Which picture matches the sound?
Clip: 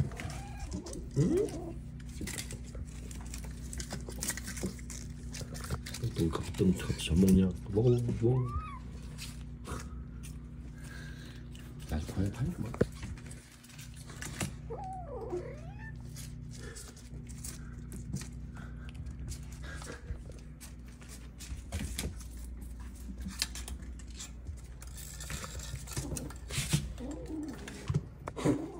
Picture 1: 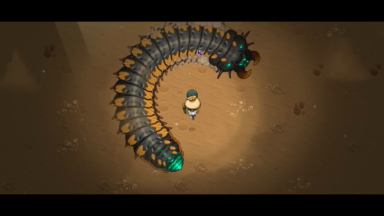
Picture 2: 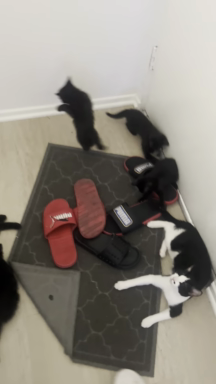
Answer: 2